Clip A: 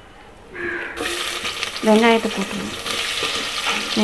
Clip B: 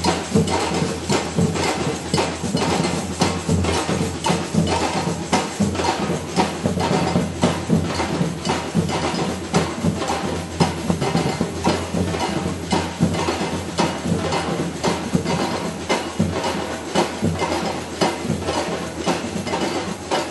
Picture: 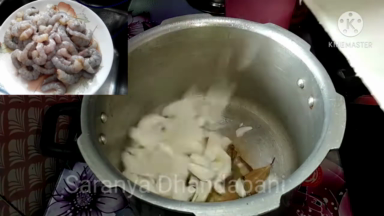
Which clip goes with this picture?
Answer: A